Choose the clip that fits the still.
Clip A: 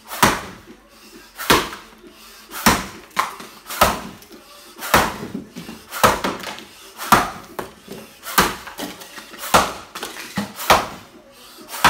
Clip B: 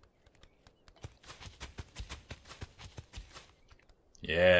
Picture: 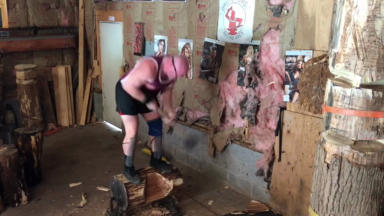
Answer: A